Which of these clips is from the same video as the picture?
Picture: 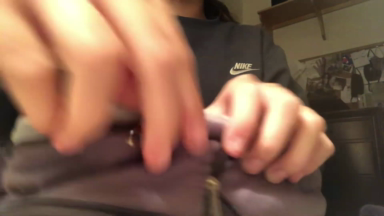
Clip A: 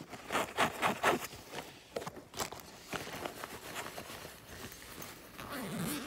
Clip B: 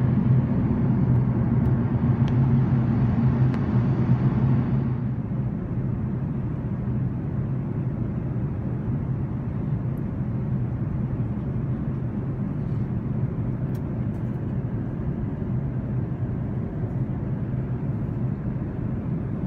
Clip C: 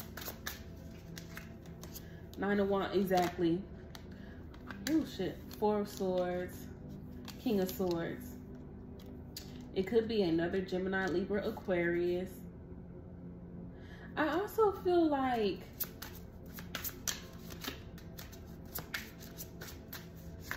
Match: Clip A